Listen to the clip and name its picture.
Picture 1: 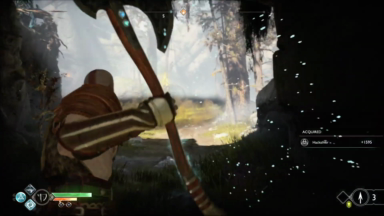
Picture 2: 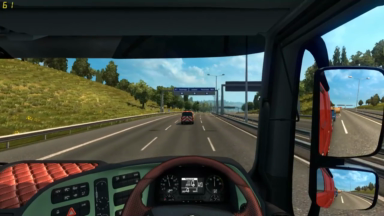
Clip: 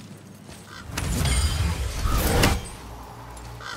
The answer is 1